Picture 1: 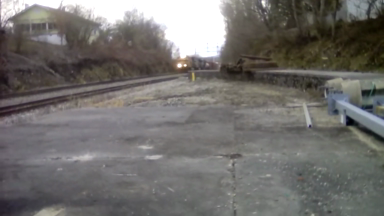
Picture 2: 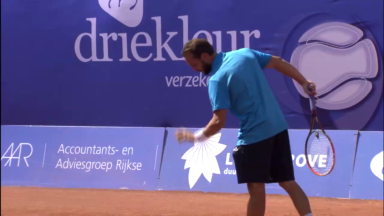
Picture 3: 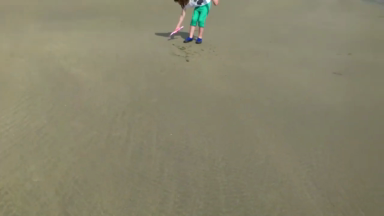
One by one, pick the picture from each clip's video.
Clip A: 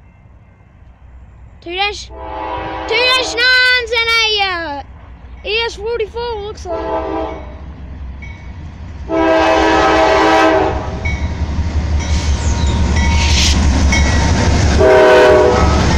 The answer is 1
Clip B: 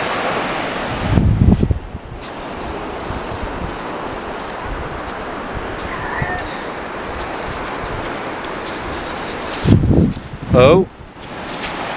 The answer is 3